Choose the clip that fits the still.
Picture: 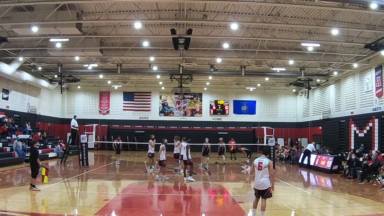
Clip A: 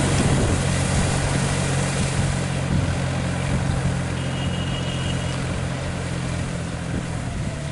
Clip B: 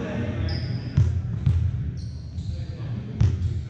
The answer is B